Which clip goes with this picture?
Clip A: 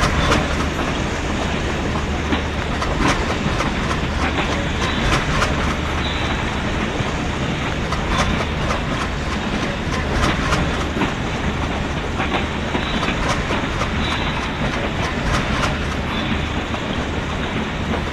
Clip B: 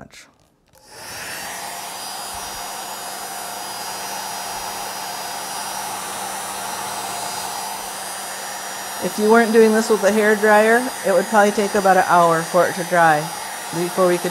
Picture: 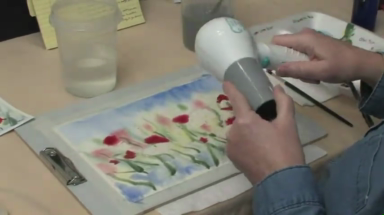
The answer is B